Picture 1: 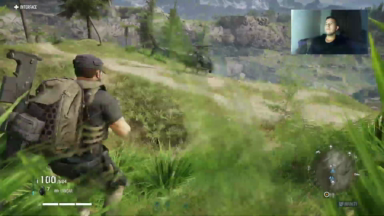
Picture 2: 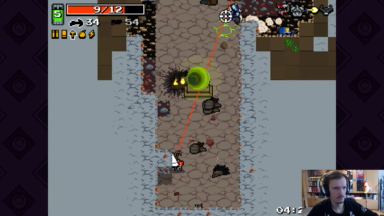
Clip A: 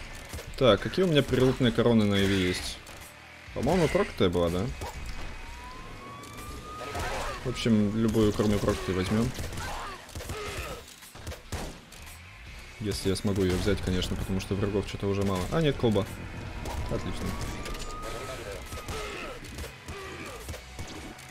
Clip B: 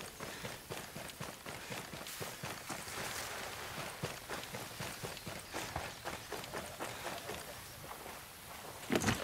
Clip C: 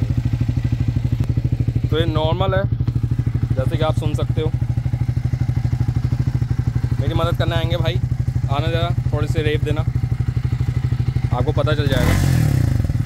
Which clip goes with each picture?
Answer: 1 B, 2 A